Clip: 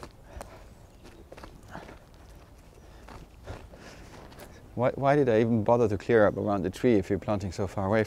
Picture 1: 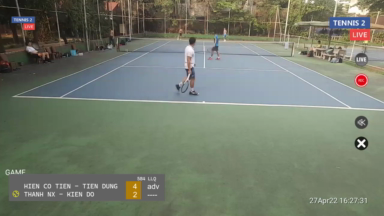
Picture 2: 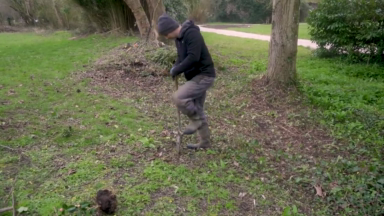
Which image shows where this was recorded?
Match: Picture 2